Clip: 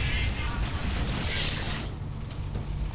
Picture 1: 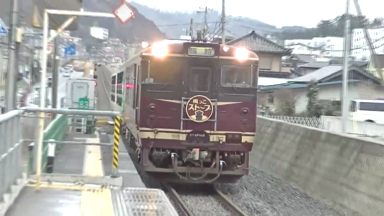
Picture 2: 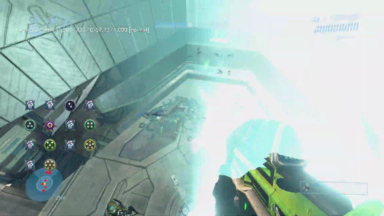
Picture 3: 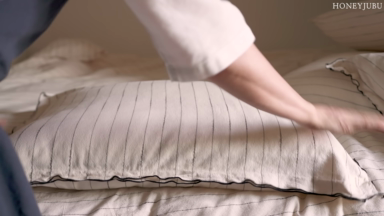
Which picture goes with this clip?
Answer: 2